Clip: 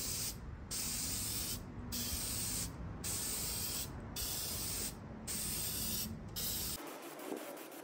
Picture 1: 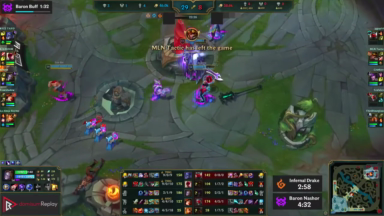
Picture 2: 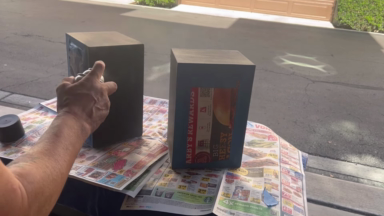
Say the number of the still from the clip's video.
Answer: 2